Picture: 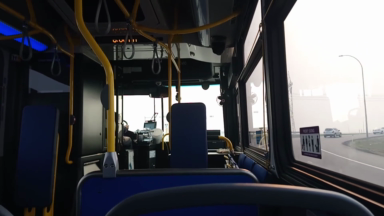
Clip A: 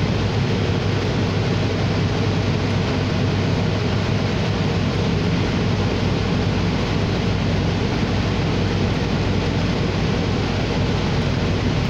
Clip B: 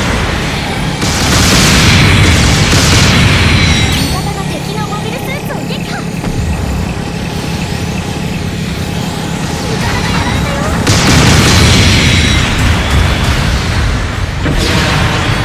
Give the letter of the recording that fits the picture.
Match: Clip A